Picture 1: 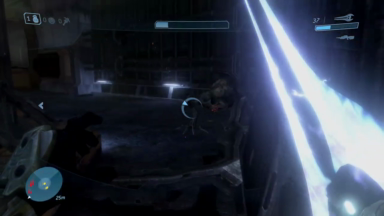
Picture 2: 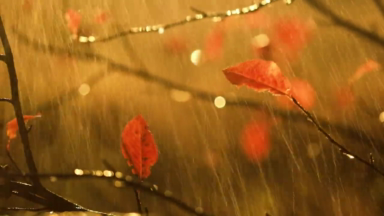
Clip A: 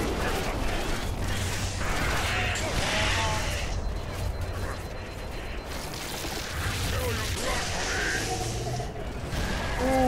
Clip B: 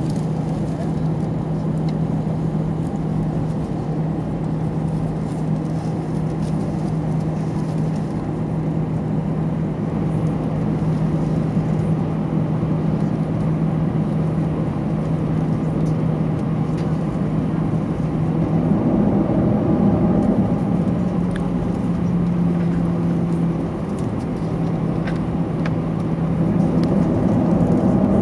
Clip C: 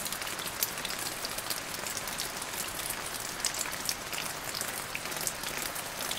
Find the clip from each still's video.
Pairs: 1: A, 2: C